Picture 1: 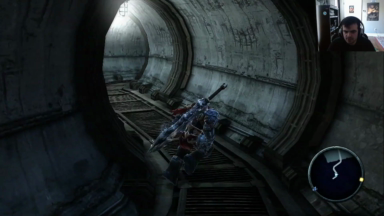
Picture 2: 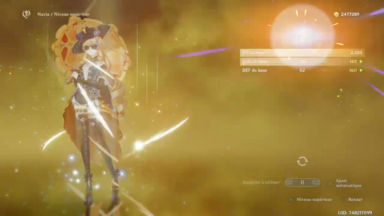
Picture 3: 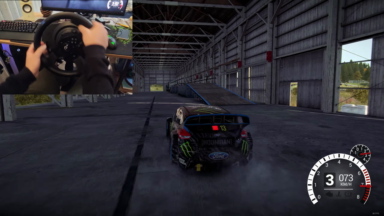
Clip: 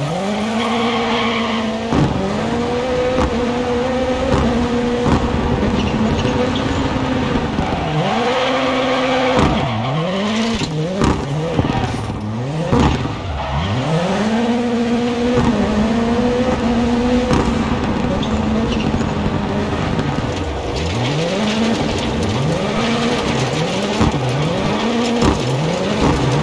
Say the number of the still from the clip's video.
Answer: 3